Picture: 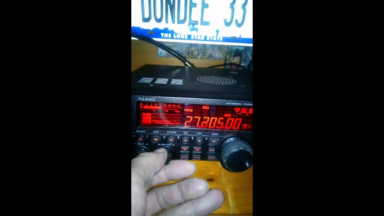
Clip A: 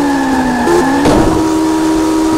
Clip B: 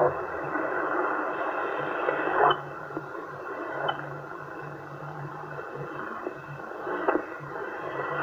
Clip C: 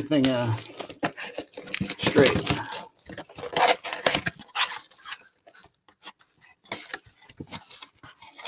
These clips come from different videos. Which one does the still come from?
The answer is B